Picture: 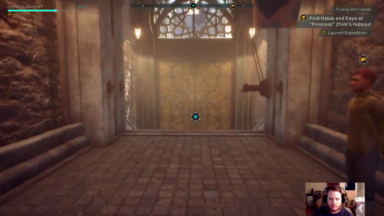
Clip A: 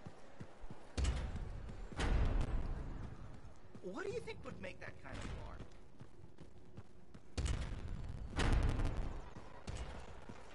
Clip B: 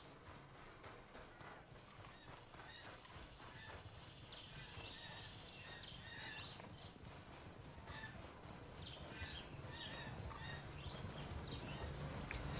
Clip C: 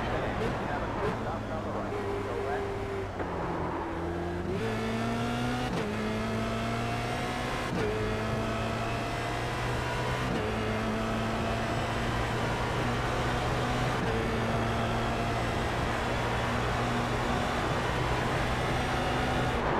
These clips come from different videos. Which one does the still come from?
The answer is A